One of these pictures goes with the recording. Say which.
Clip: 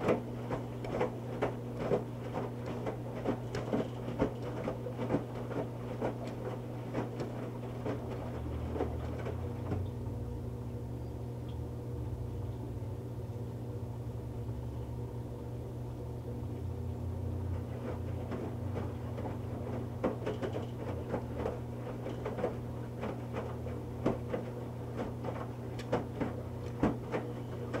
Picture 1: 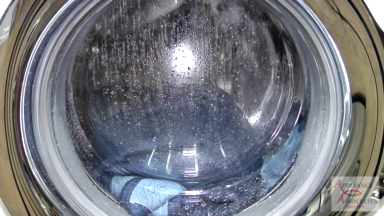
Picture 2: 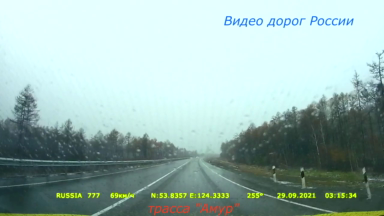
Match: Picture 1